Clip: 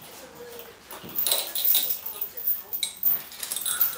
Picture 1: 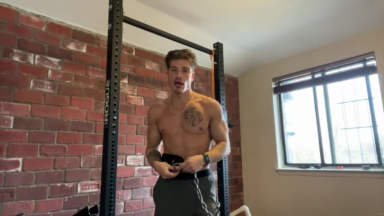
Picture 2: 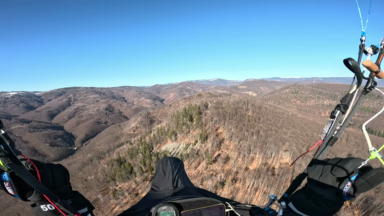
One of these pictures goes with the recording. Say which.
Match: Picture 1